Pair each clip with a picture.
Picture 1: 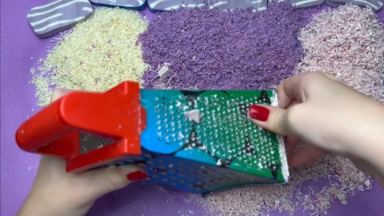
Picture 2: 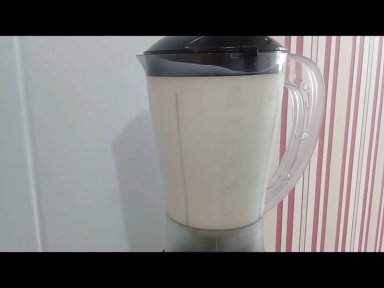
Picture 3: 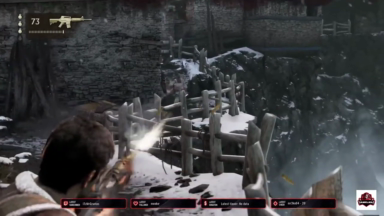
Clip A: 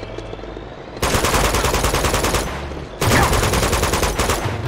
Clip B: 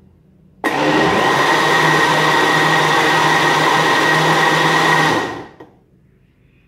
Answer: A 3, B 2